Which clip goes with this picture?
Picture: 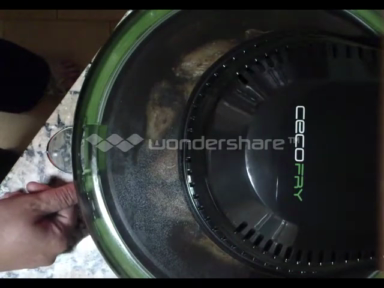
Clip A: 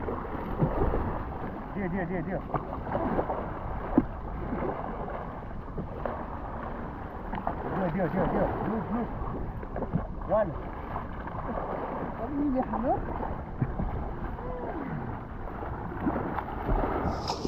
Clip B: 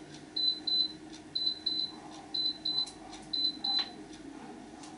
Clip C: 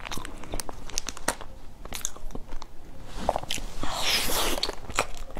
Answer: B